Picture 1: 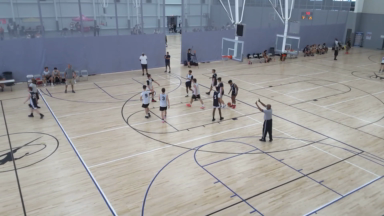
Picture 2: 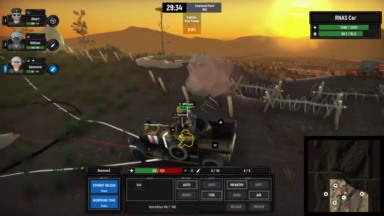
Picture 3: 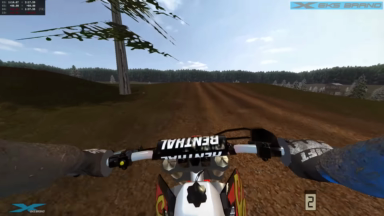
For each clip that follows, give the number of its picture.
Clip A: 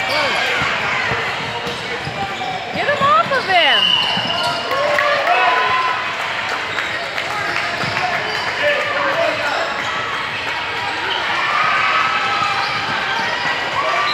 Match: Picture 1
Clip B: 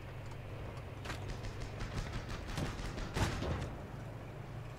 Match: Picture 2